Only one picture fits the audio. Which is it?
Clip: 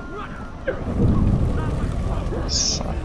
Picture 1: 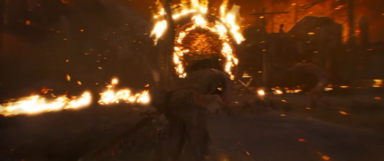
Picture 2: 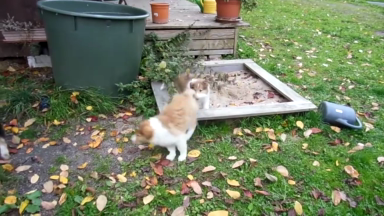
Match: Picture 1